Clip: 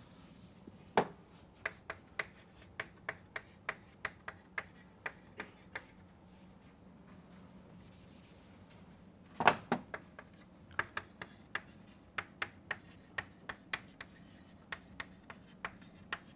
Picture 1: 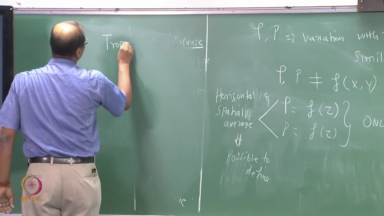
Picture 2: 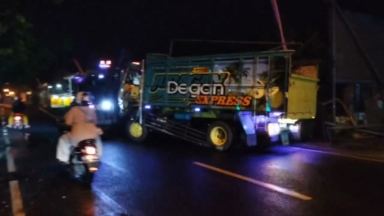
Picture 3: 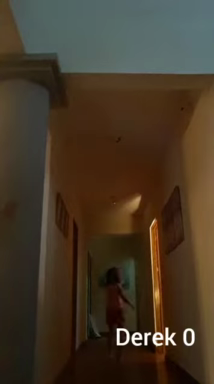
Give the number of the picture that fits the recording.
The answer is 1